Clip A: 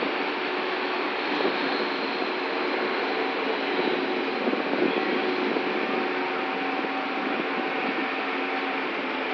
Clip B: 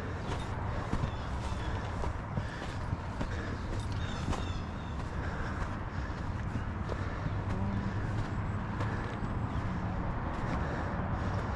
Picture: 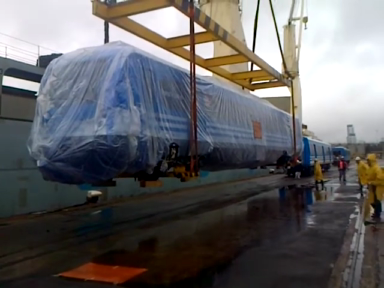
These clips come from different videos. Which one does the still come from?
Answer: A